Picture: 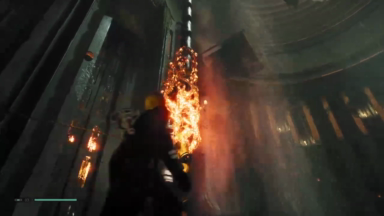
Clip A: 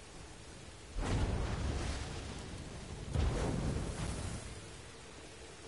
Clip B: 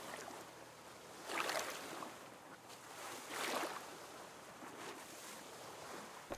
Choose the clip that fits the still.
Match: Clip A